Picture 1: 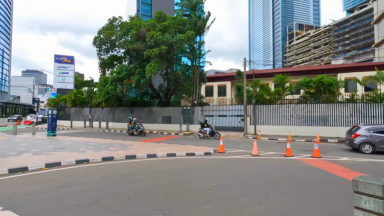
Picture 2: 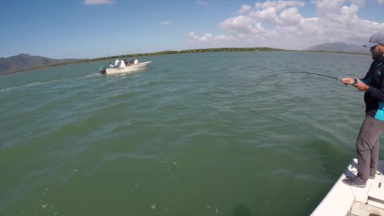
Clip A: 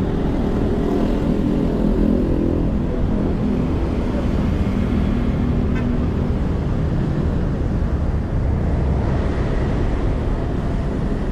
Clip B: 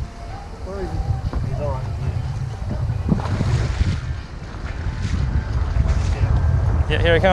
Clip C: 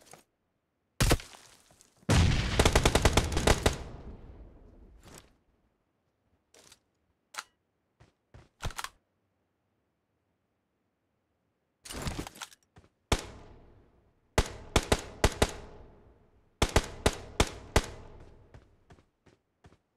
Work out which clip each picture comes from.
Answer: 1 A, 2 B